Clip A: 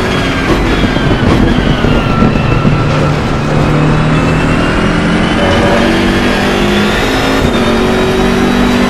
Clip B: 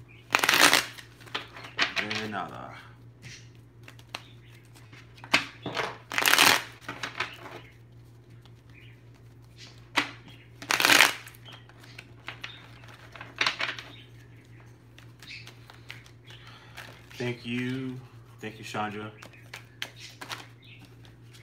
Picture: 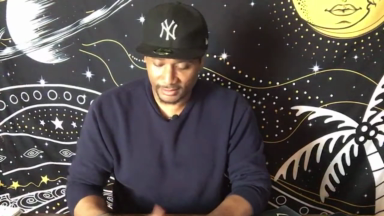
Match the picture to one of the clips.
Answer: B